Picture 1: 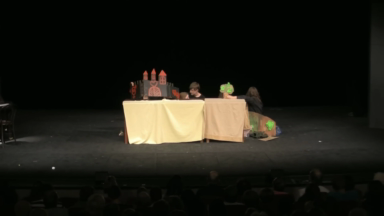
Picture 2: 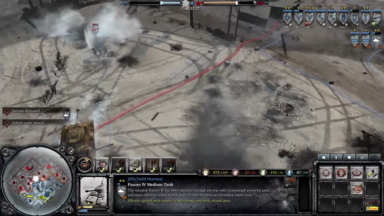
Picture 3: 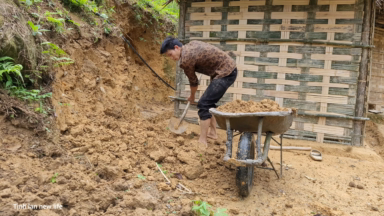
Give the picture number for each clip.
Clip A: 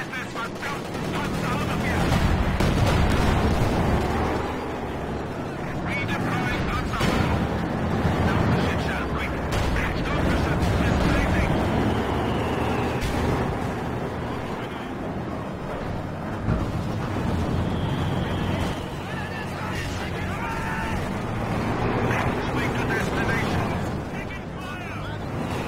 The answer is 2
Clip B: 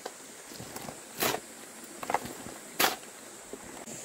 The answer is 3